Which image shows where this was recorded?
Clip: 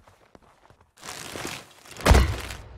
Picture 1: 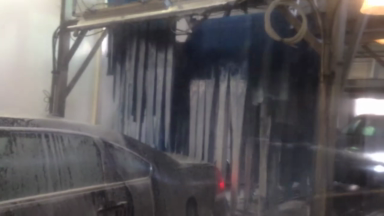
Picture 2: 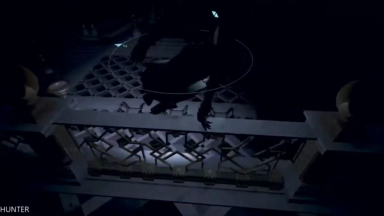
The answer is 2